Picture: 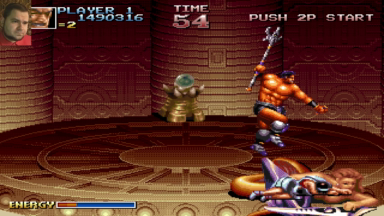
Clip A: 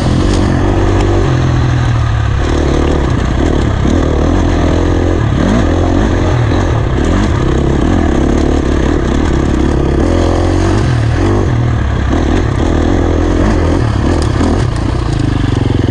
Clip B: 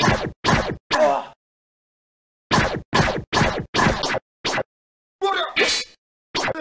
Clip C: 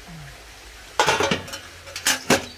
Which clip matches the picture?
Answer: B